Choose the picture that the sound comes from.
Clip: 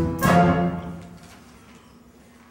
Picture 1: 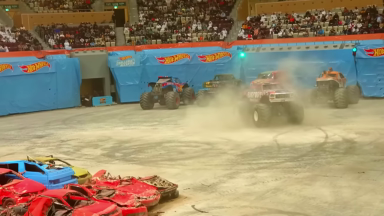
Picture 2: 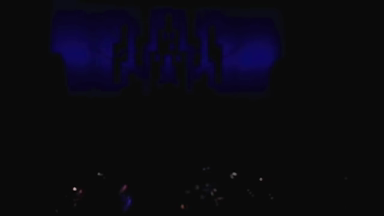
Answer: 2